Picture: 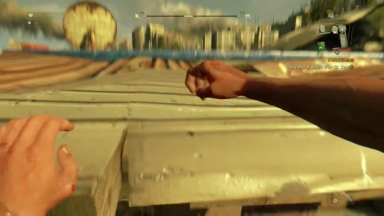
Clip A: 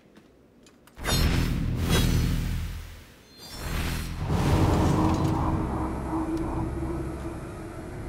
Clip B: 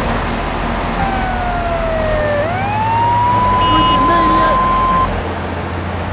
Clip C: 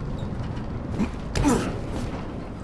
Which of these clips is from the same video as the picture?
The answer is C